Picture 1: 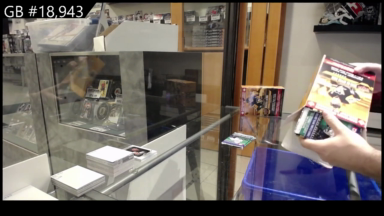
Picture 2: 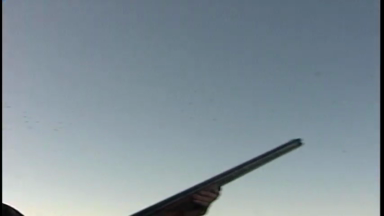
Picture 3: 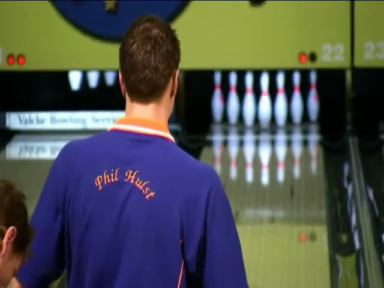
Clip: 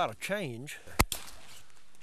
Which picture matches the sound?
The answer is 2